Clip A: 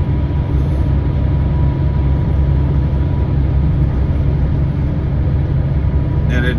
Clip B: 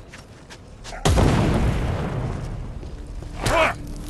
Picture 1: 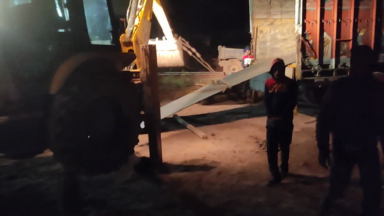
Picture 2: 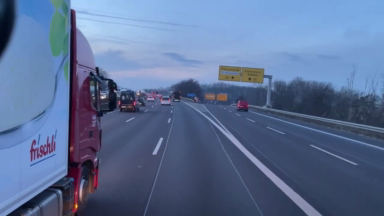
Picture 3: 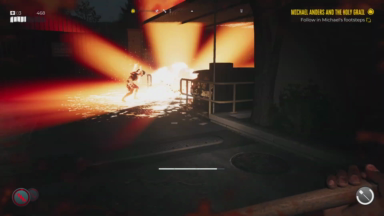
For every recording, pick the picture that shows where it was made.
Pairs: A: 2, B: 3